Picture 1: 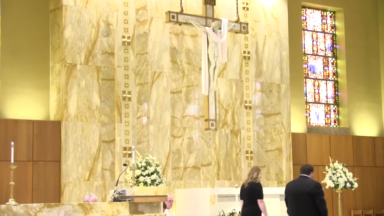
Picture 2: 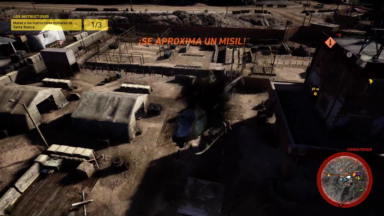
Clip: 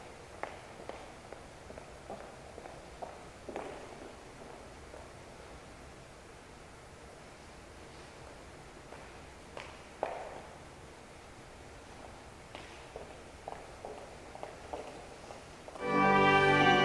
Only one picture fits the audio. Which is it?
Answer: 1